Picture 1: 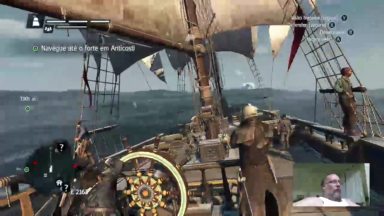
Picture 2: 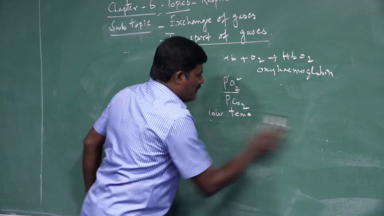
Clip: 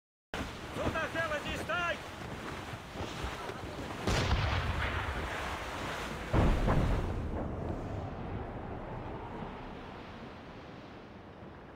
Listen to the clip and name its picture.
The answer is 1